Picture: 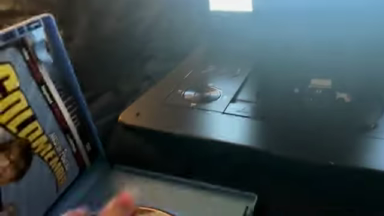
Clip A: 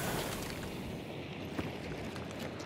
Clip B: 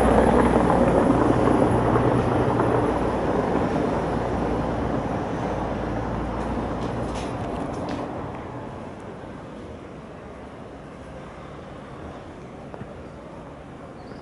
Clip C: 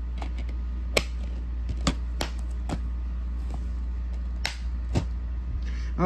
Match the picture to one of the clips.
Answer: C